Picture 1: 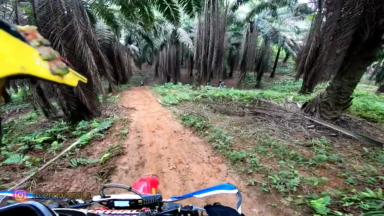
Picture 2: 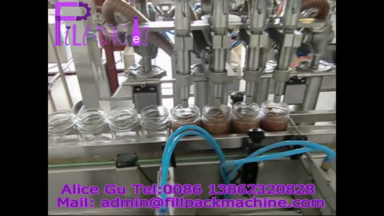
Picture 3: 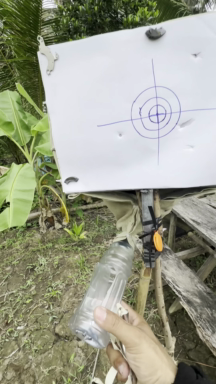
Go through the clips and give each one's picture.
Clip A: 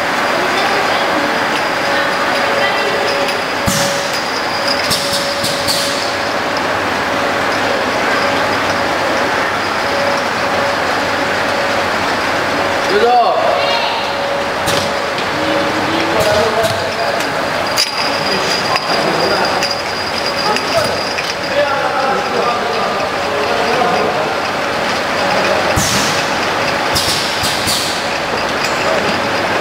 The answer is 2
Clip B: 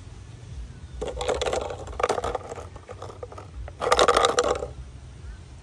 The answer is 3